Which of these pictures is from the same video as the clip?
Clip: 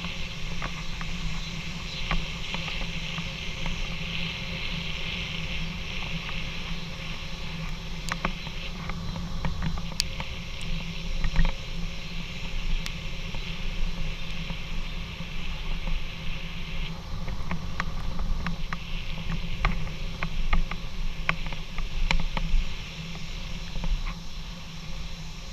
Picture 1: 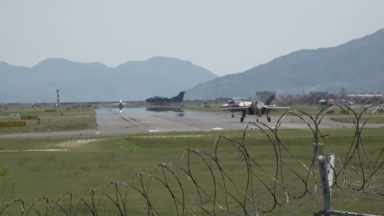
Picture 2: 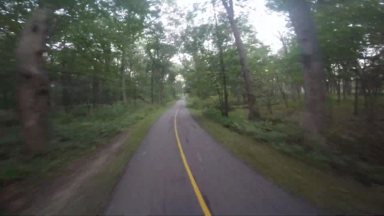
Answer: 2